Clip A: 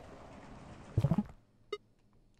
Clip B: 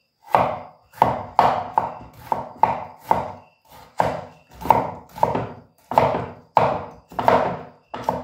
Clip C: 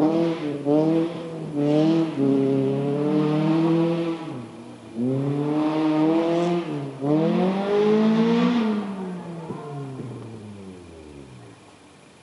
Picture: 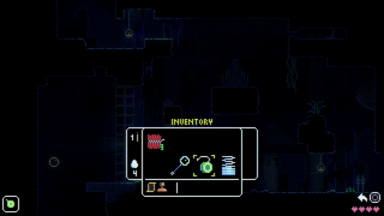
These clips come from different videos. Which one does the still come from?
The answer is A